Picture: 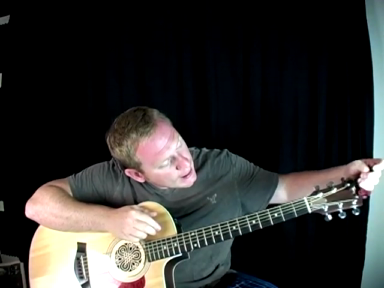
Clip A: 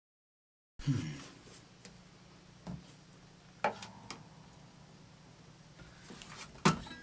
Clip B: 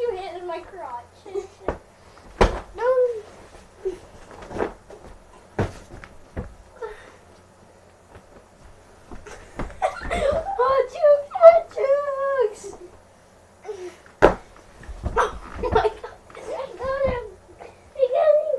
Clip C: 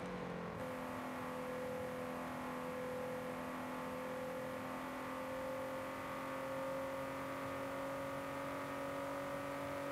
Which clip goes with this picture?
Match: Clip A